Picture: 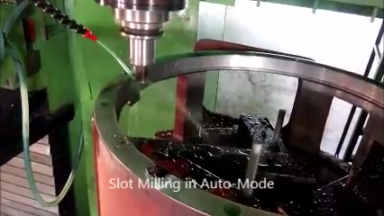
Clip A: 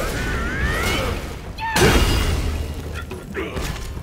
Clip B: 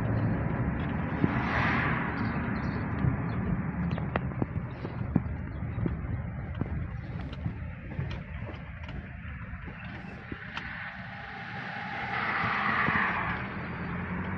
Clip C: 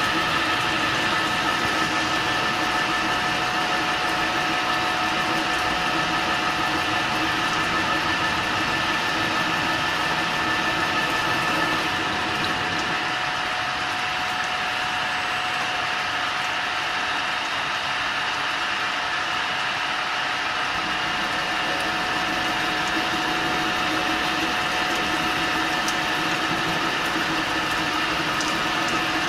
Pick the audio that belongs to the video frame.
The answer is C